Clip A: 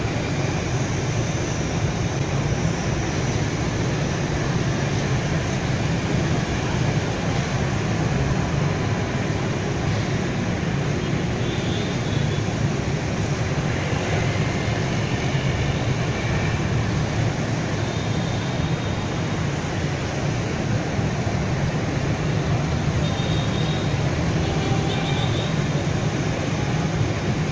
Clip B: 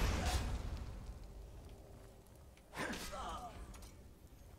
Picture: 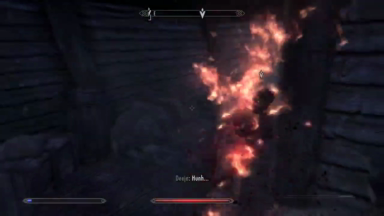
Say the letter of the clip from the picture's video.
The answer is B